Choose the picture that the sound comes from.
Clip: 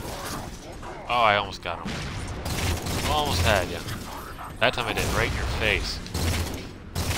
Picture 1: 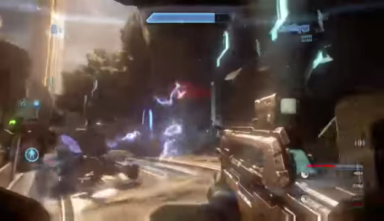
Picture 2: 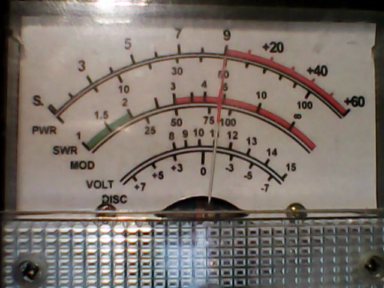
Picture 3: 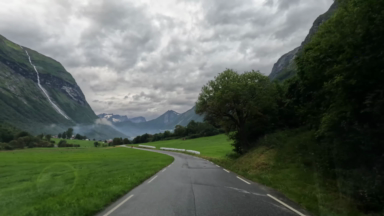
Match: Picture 1